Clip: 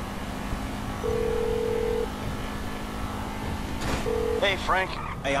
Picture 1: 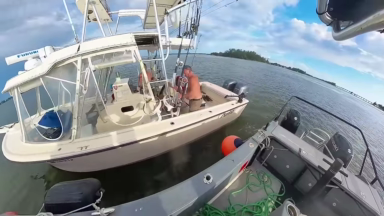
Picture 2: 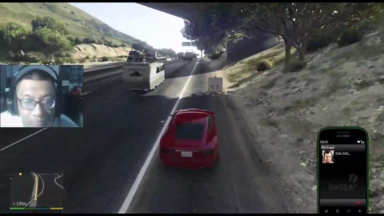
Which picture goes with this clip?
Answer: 2